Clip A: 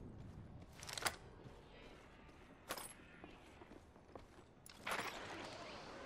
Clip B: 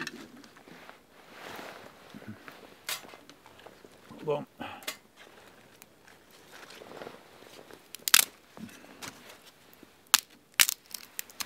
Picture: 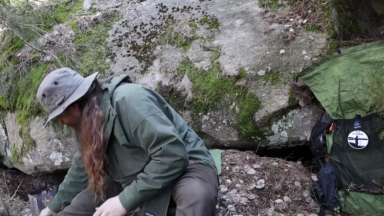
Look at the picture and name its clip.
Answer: B